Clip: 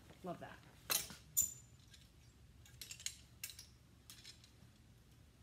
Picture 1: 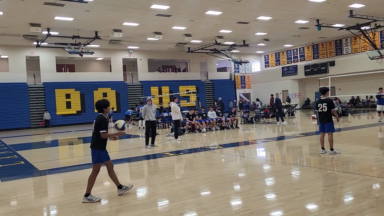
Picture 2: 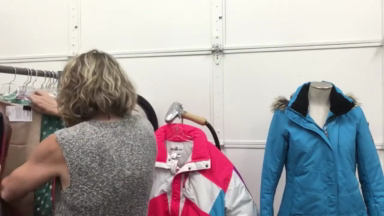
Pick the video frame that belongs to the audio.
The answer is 2